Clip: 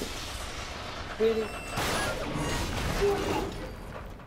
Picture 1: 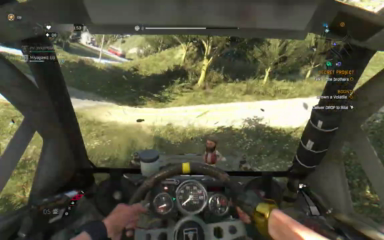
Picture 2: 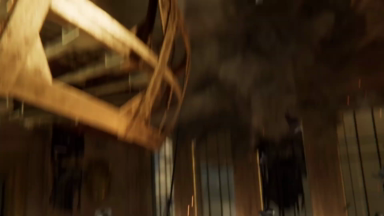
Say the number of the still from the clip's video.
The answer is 2